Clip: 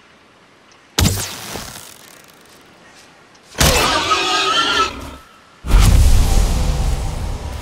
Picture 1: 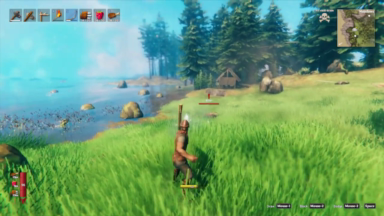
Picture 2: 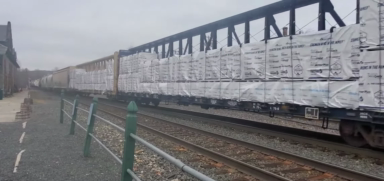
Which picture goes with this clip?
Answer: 1